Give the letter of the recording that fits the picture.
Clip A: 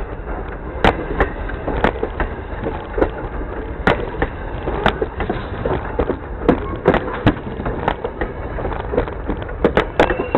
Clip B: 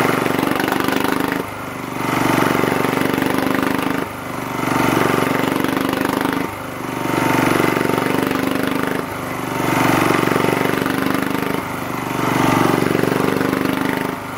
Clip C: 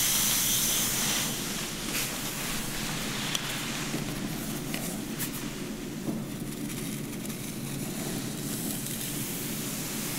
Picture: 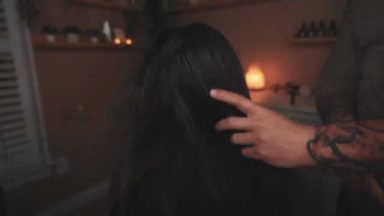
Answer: C